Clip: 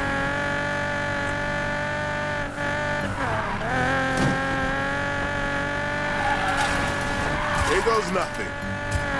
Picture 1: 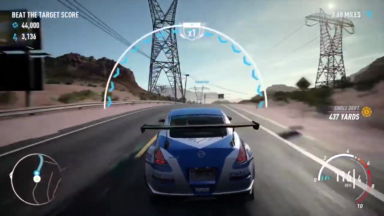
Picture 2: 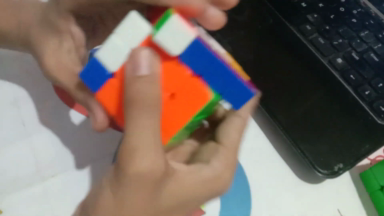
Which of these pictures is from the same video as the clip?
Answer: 1